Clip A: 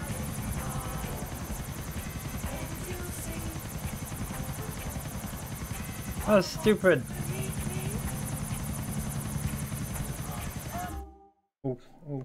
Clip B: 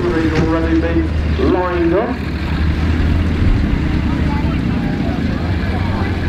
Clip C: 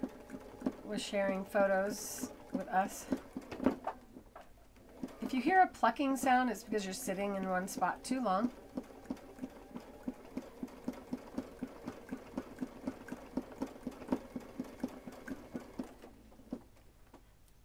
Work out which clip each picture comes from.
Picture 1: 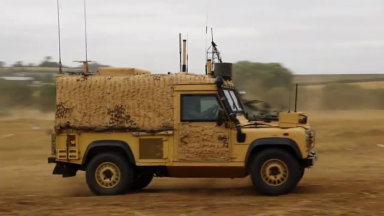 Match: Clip B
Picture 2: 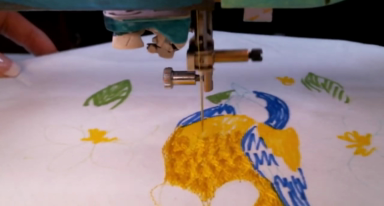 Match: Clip C